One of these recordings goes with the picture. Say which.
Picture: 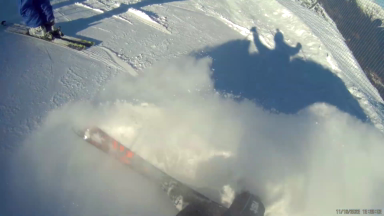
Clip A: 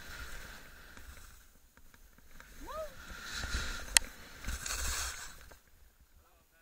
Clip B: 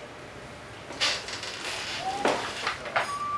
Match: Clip A